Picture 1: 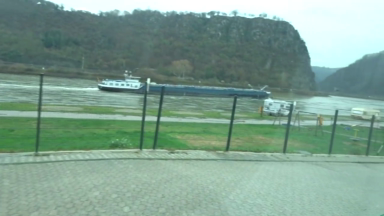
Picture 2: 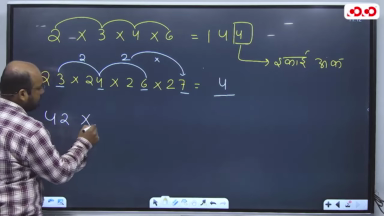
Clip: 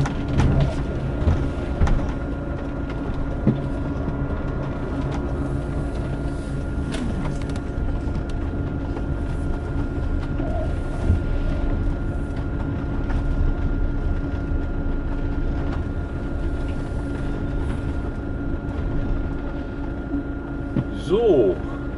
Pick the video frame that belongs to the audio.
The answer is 1